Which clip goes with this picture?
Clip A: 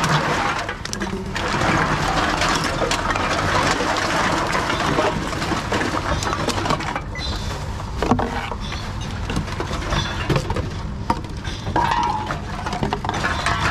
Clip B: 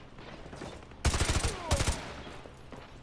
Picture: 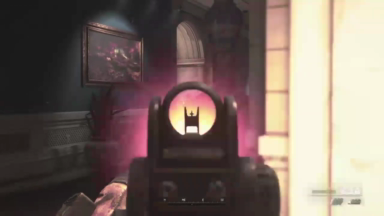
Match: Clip B